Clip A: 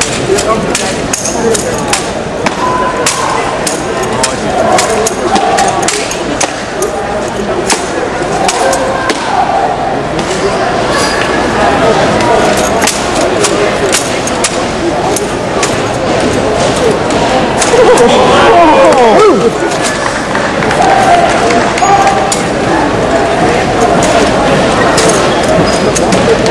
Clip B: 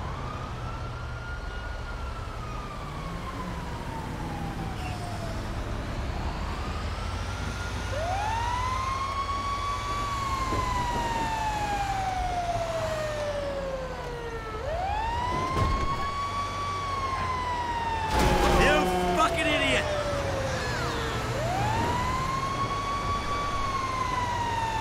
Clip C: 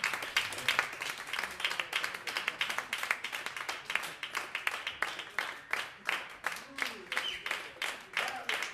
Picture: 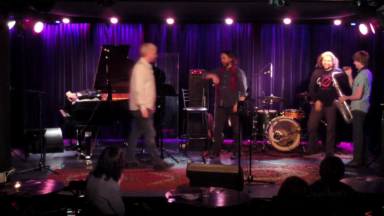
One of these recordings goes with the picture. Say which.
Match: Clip C